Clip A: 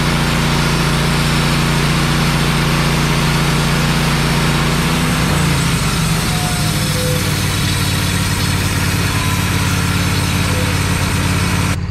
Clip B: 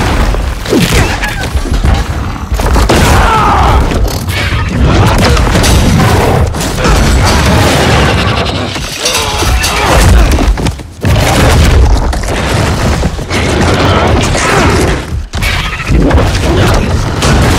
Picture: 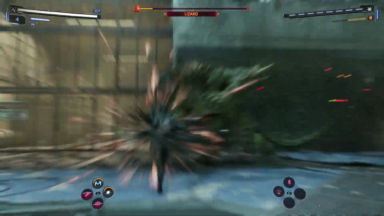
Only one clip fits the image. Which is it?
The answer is B